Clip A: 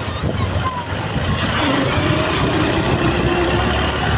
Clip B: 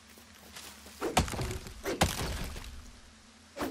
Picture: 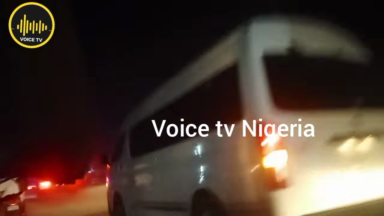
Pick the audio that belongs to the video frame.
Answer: A